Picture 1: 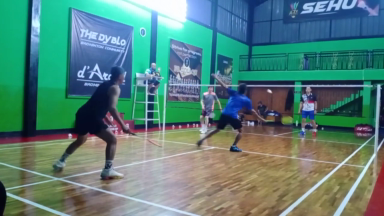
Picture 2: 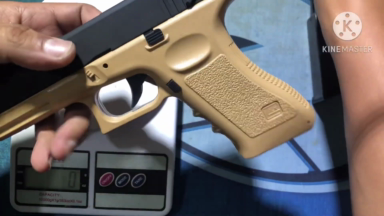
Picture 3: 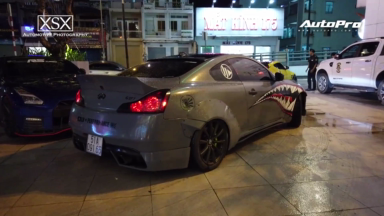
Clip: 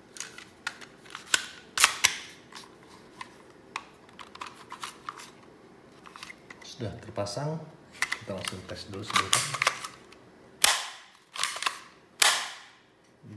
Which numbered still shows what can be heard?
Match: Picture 2